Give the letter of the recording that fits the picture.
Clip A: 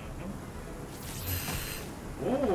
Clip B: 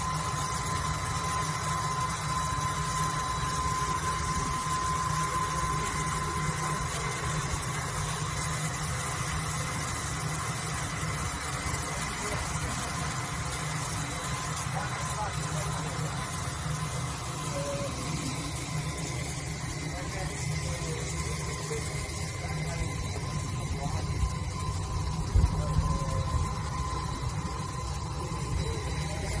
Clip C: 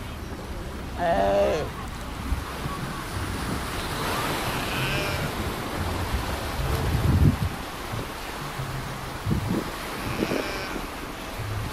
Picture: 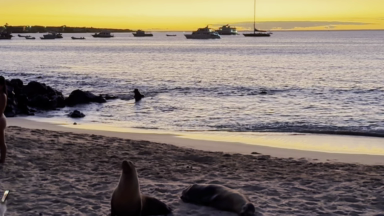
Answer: C